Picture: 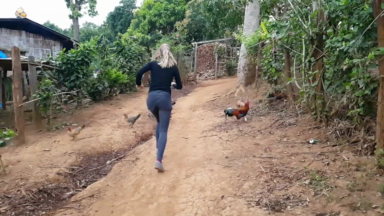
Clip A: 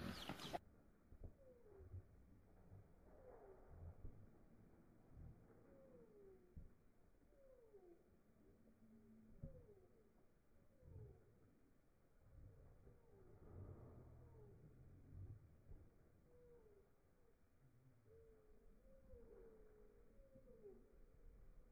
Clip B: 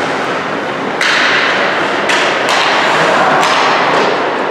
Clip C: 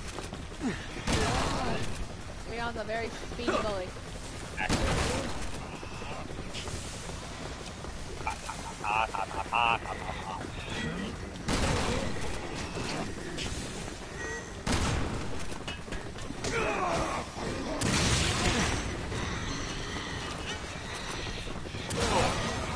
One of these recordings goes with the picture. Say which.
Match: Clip A